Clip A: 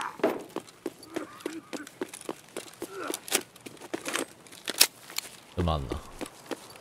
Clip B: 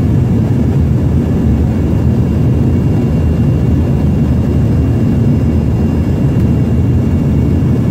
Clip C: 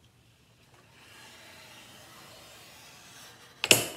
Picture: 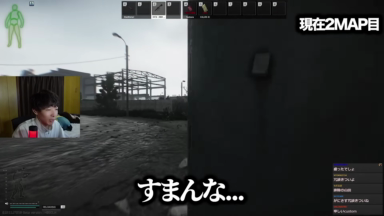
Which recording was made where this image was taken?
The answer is A